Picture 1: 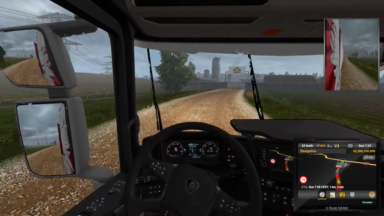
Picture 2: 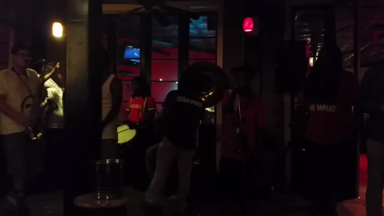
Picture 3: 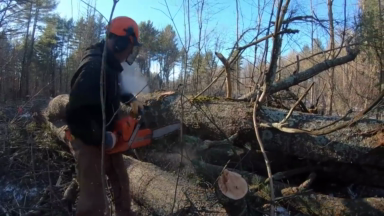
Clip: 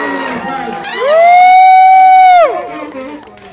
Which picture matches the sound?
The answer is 2